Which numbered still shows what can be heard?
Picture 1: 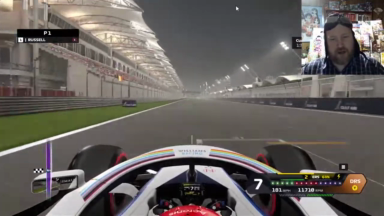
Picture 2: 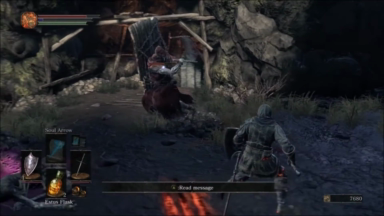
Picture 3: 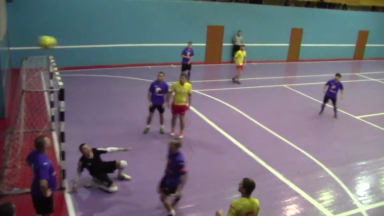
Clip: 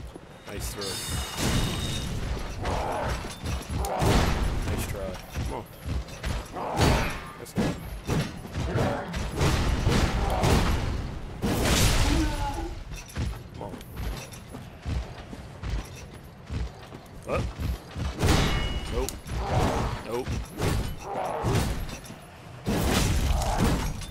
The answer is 2